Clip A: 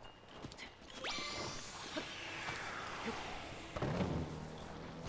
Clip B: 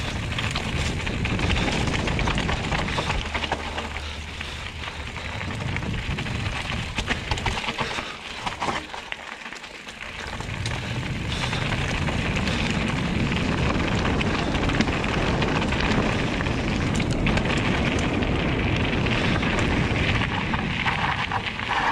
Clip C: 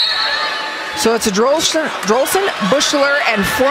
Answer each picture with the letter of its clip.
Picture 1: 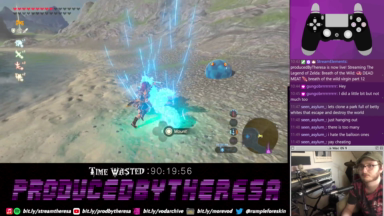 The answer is A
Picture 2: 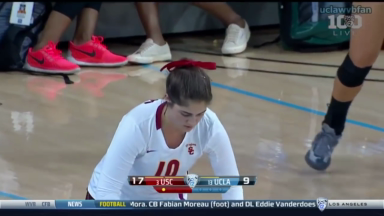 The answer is C